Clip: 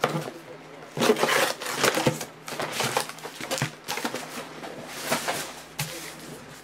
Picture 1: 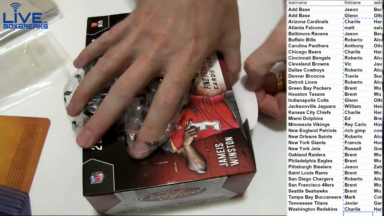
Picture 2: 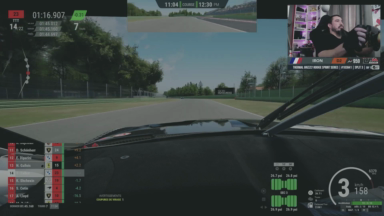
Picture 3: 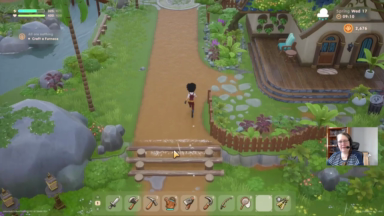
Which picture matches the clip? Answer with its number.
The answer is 1